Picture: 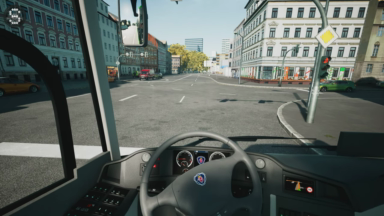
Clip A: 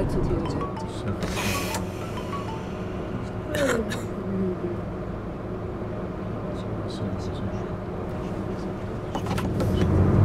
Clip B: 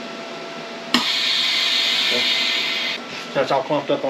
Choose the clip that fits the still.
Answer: A